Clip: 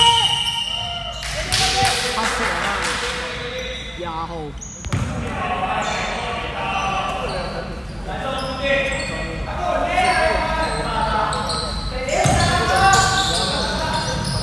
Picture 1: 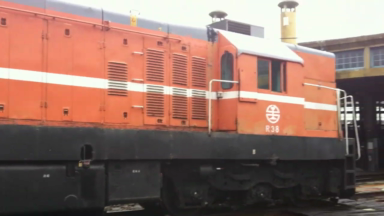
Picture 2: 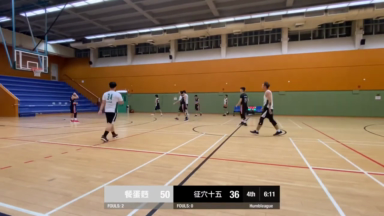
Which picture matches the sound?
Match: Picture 2